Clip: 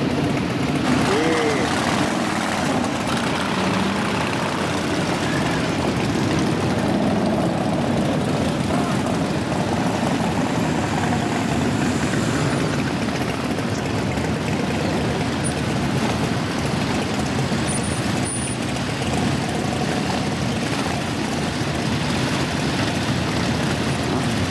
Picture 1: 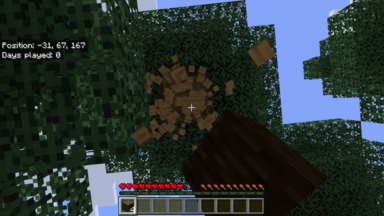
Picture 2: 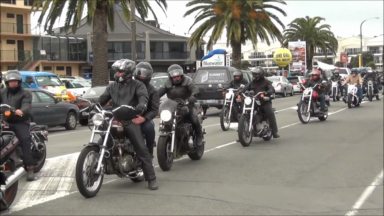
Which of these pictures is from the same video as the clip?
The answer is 2